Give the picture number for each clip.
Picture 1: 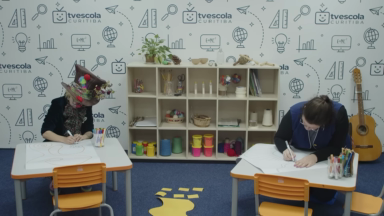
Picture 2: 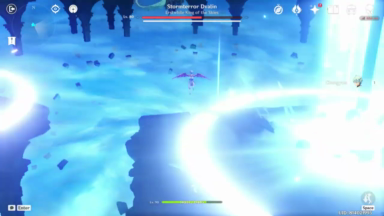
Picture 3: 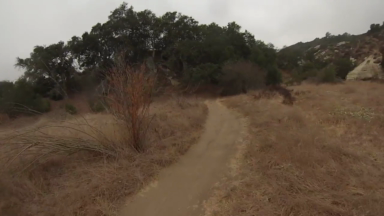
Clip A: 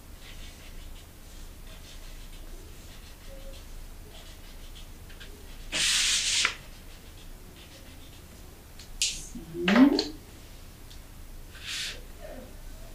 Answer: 1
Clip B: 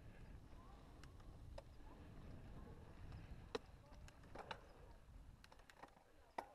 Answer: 3